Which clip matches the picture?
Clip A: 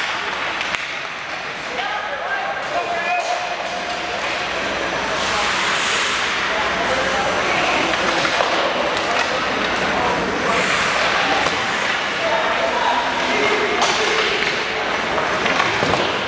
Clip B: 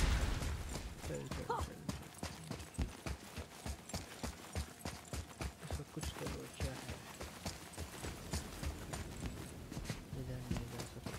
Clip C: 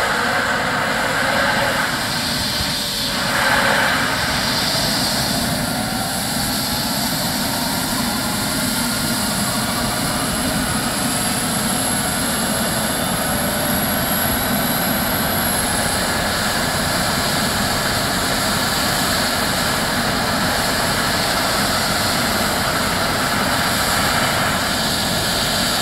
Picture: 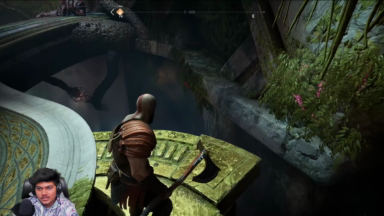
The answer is B